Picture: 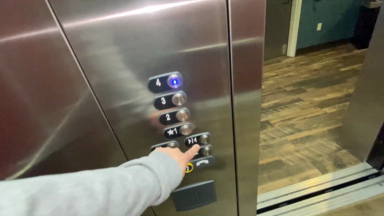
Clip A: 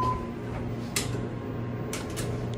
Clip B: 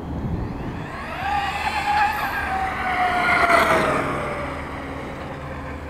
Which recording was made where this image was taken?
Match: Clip A